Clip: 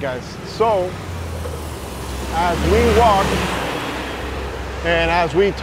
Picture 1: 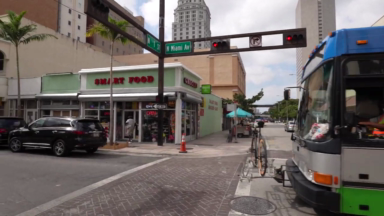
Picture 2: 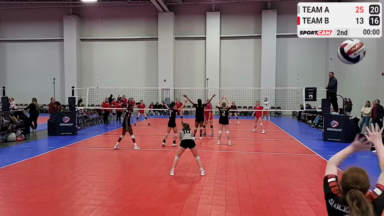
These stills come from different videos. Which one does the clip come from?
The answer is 1